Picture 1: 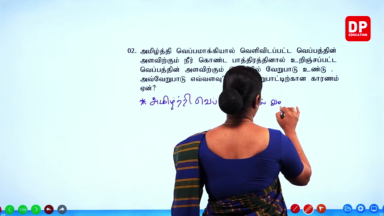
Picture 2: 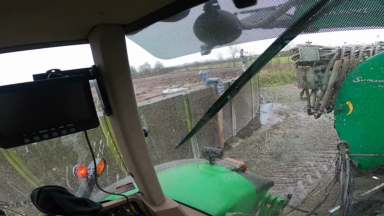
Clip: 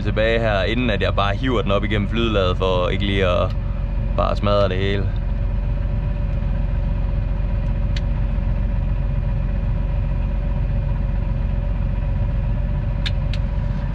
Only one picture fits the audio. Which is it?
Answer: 2